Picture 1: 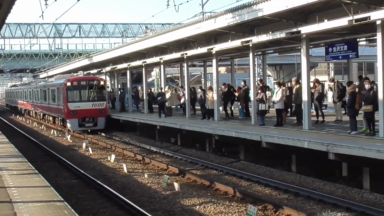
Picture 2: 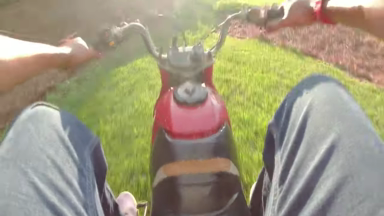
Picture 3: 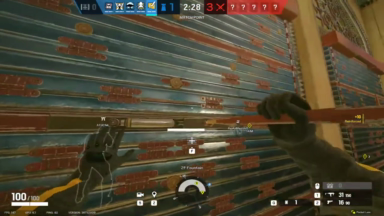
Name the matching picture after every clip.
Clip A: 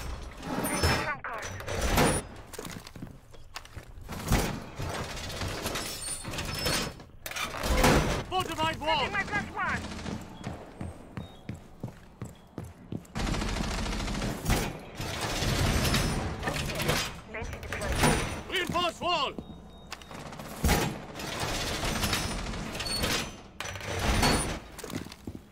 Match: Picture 3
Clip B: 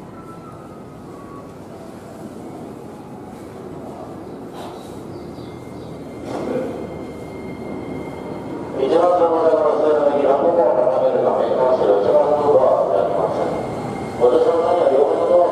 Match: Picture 1